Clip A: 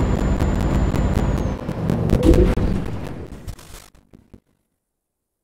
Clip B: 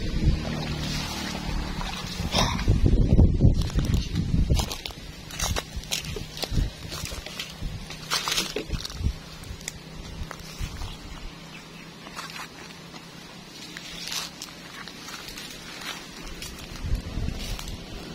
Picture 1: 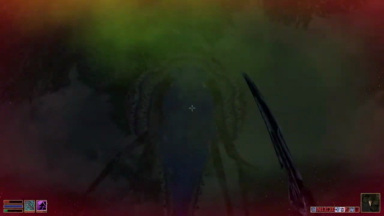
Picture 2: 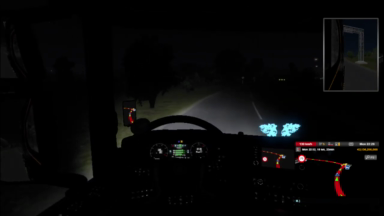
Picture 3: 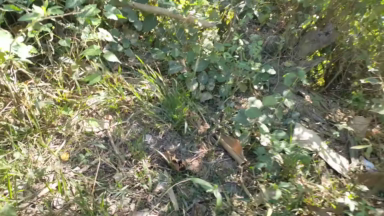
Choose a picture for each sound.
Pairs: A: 2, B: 3